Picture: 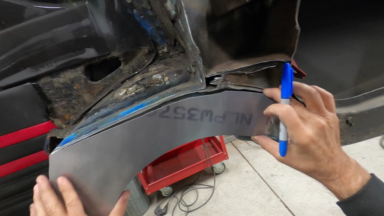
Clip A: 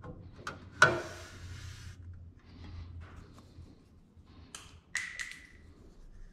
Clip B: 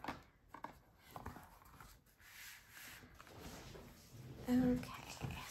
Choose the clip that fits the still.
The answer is A